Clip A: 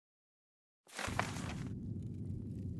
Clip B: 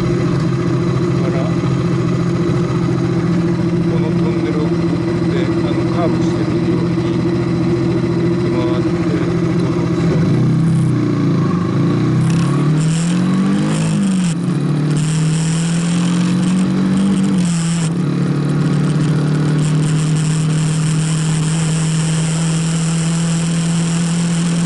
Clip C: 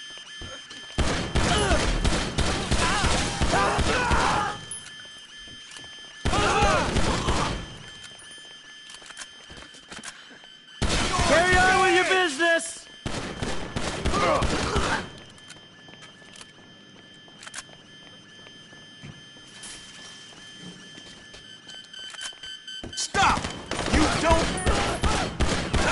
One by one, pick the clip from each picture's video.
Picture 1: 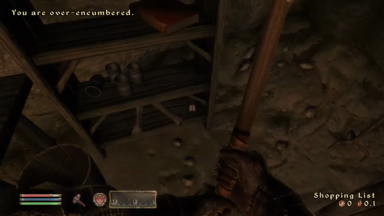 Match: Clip A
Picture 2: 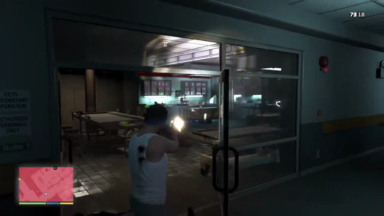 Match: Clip C